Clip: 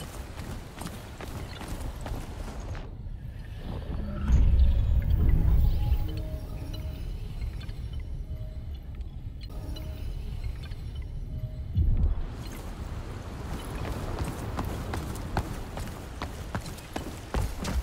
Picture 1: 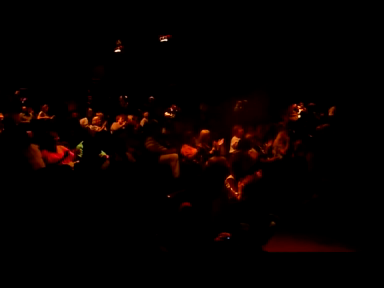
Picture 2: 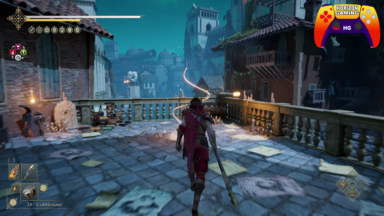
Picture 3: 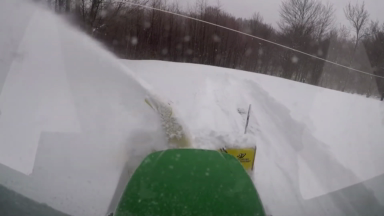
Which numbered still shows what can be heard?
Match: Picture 2